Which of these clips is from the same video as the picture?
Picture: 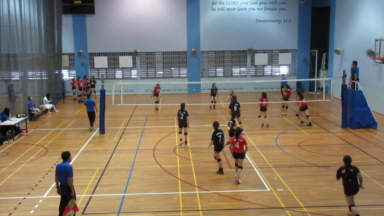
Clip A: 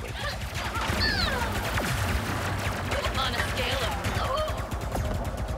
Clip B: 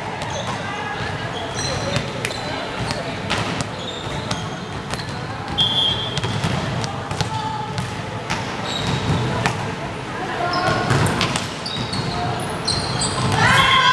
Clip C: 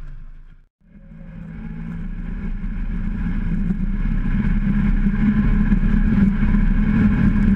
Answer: B